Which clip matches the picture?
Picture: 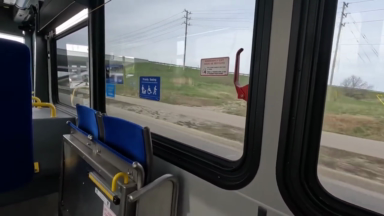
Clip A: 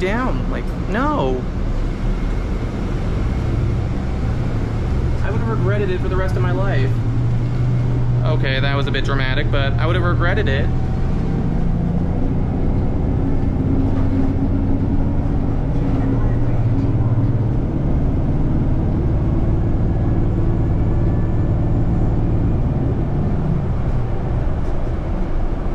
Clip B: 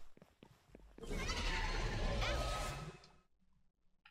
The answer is A